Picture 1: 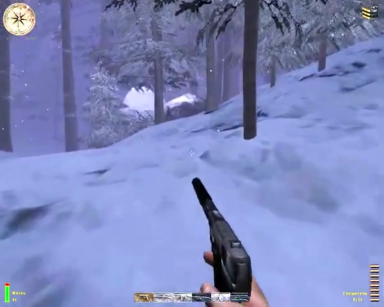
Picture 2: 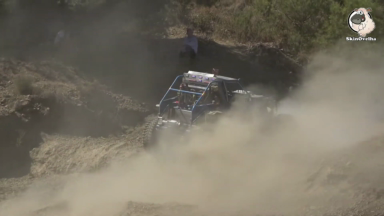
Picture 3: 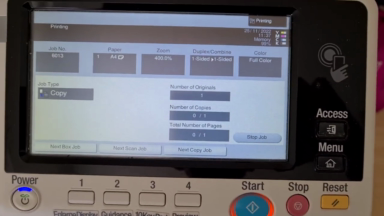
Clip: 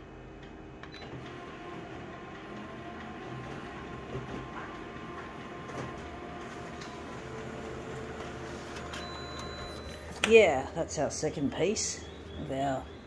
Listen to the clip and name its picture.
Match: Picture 3